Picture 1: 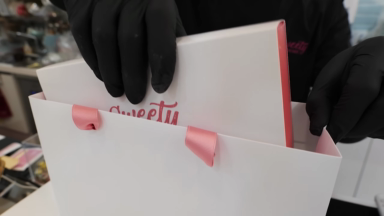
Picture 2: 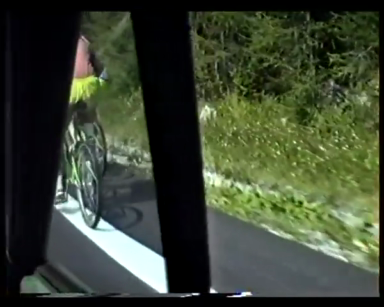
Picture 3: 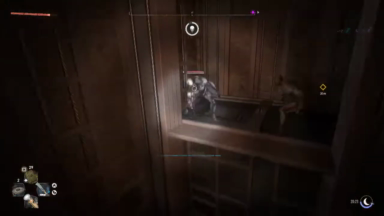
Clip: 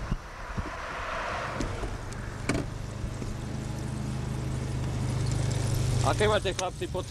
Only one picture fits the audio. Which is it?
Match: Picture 2